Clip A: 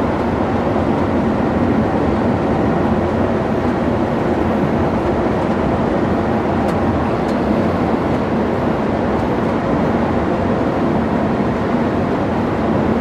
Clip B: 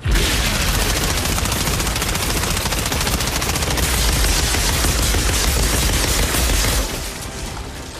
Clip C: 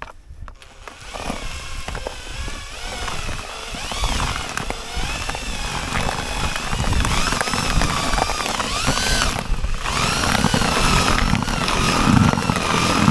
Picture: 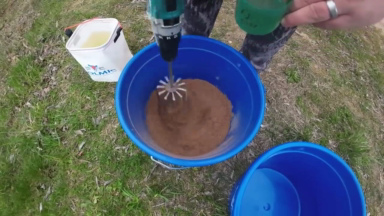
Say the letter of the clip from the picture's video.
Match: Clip C